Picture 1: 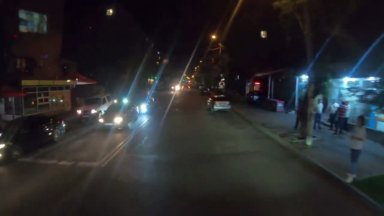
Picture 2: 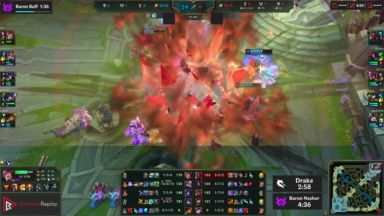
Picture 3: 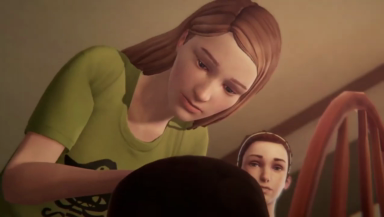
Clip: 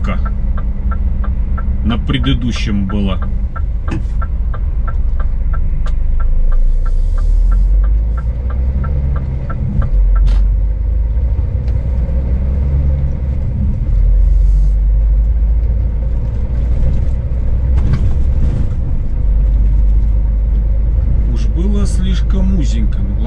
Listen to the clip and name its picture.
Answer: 1